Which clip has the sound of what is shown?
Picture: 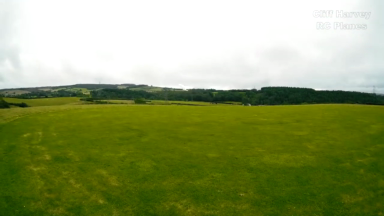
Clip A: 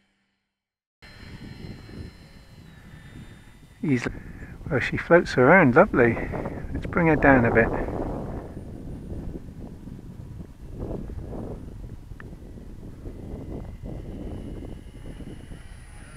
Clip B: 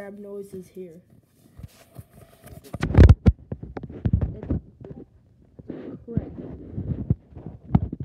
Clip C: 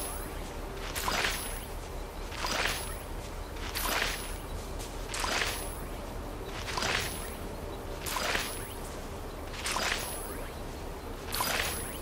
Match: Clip A